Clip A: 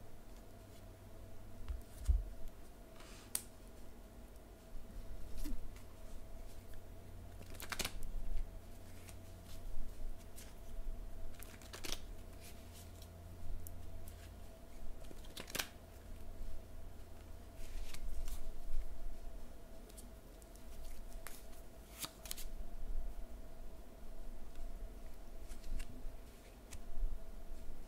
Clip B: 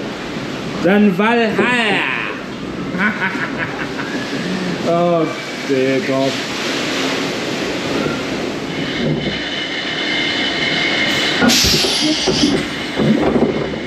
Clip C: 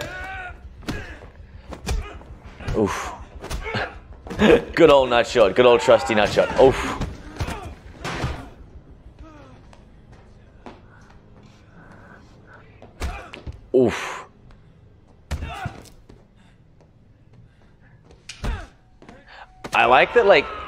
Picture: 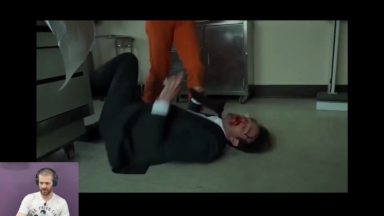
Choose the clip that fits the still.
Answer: C